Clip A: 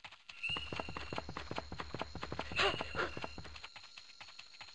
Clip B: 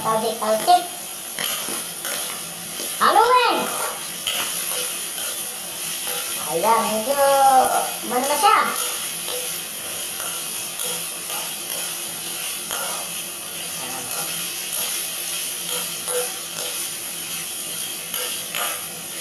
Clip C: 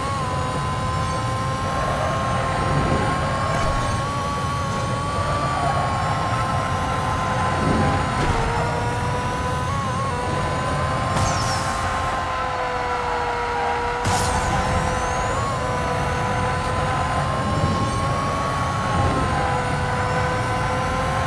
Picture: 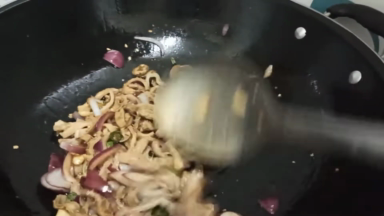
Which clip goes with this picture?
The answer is B